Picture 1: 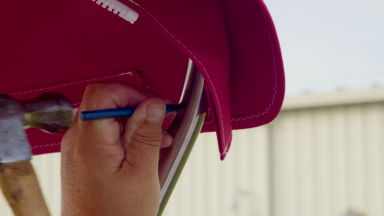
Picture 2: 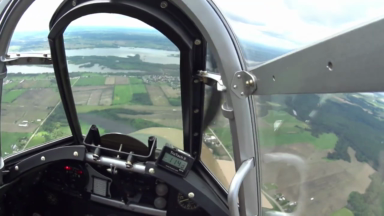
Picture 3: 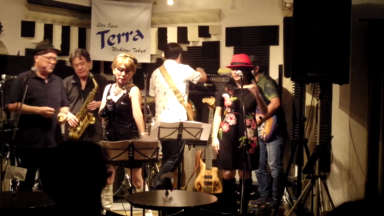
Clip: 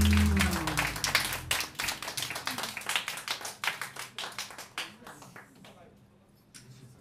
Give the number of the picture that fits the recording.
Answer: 3